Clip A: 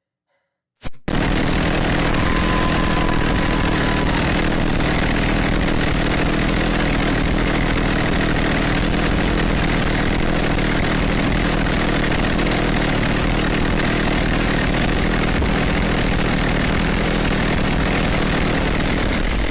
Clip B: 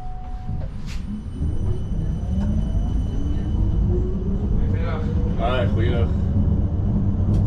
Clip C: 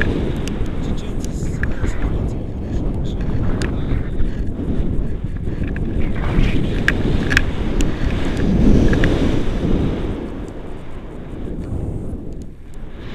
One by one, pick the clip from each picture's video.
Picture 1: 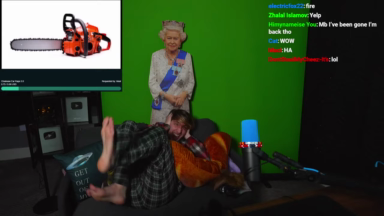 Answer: A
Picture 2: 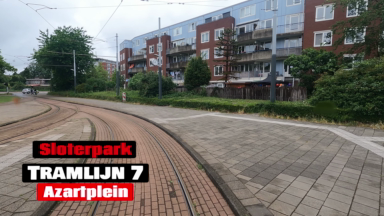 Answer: B